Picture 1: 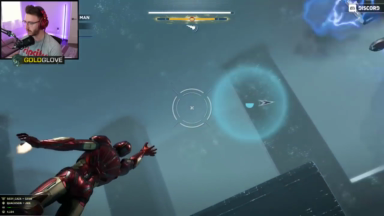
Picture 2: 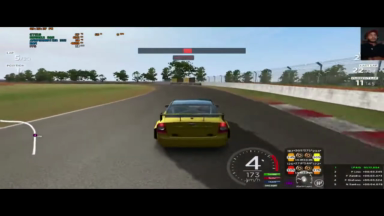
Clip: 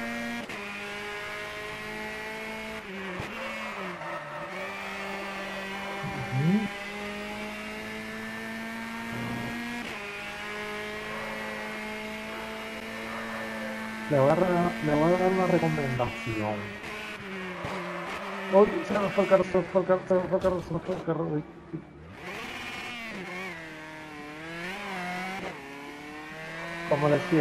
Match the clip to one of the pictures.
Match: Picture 2